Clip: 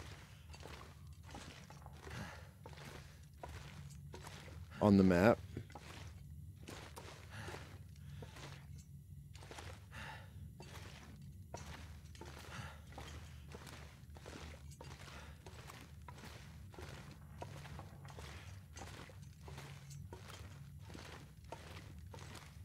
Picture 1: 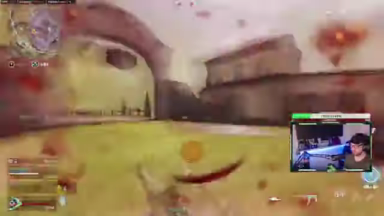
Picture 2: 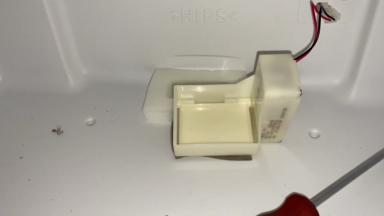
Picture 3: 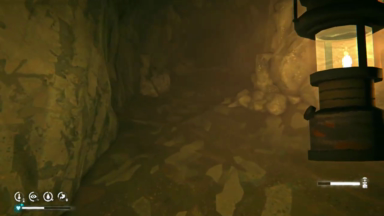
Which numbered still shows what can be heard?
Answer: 3